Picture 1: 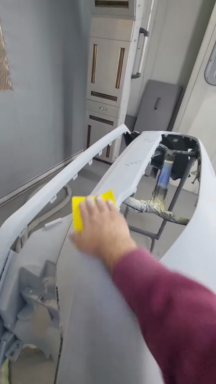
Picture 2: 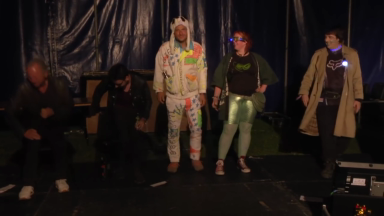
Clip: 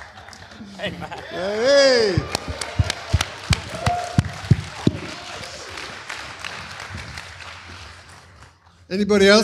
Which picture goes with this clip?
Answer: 2